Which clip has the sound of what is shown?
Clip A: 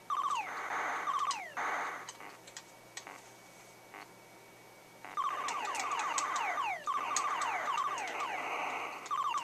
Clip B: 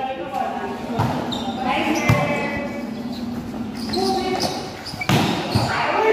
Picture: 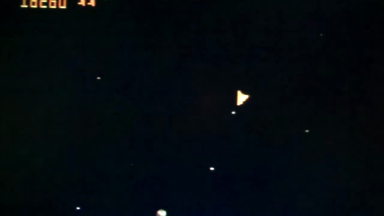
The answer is A